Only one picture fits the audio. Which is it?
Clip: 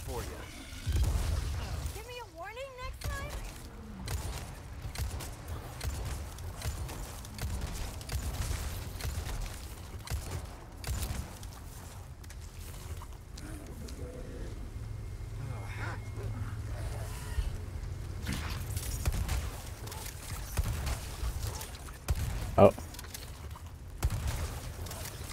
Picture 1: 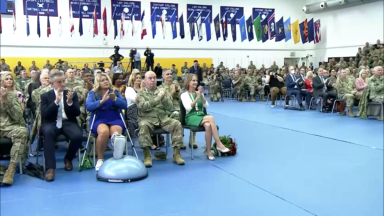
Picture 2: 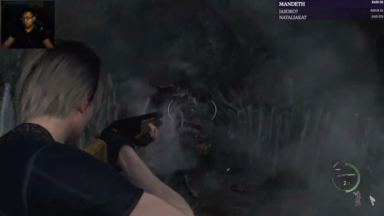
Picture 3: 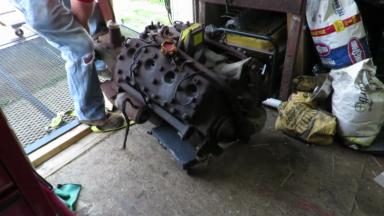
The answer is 2